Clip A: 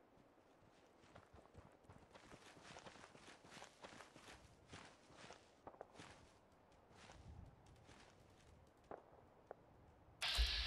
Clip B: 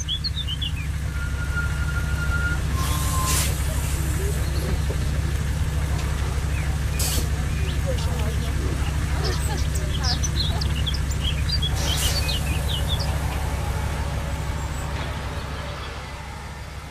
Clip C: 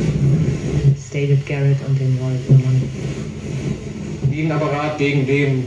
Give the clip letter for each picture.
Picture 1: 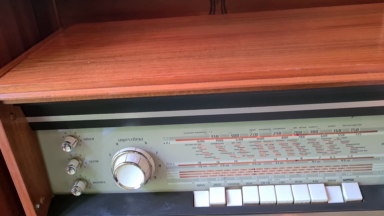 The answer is C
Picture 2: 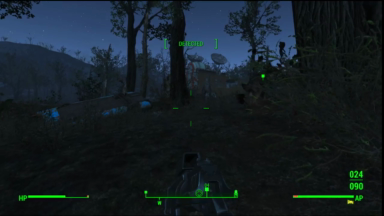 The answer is A